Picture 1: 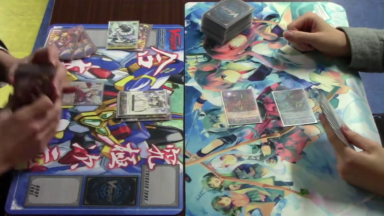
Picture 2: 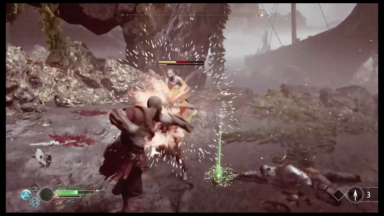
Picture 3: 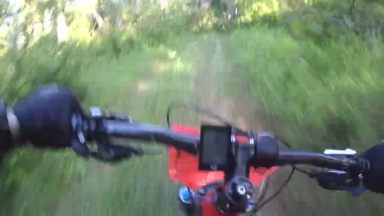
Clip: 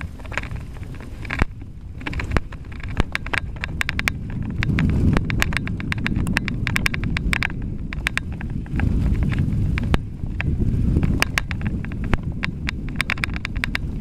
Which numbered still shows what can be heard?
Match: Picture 3